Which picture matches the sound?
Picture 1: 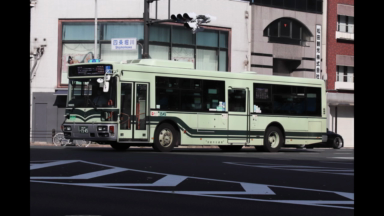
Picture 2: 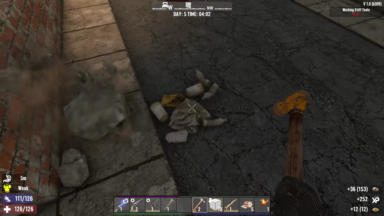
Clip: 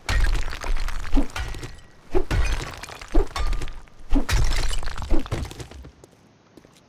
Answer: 2